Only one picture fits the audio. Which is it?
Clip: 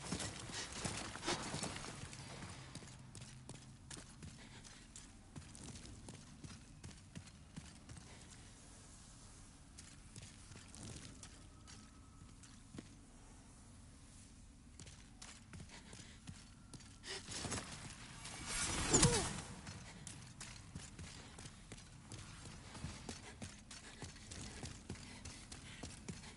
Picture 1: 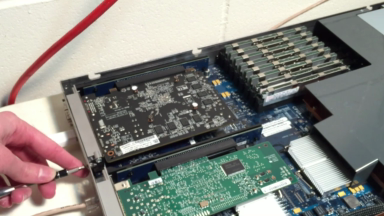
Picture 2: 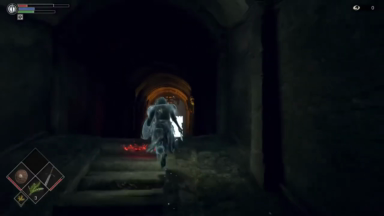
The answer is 2